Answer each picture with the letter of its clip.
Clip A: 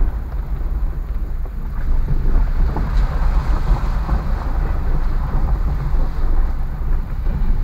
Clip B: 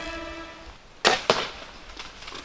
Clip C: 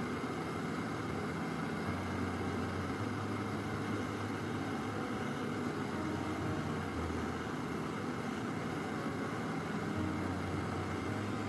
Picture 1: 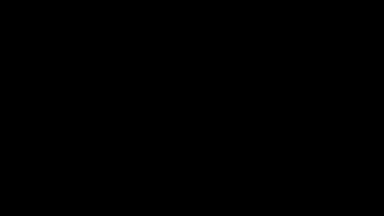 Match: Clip B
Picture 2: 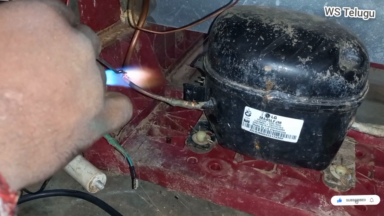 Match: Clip C